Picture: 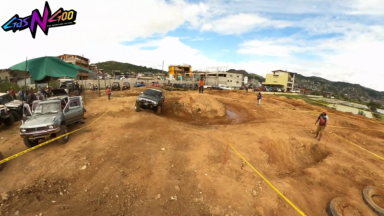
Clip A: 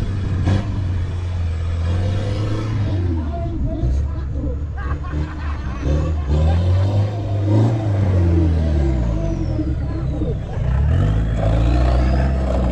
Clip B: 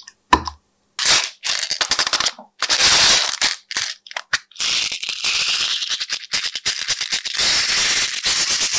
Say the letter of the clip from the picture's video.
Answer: A